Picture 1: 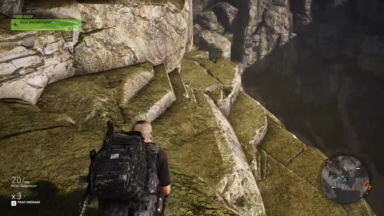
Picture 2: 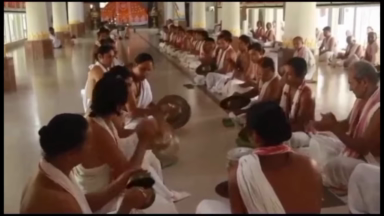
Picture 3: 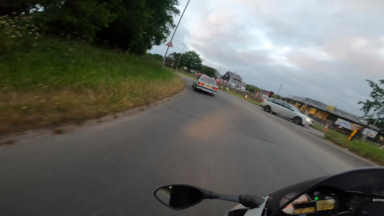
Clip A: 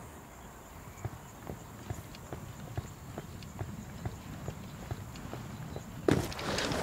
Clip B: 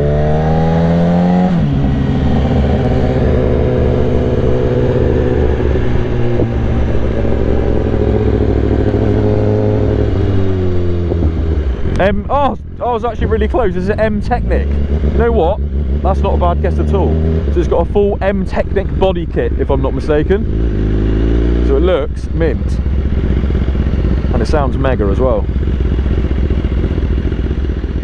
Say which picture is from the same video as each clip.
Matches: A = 1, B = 3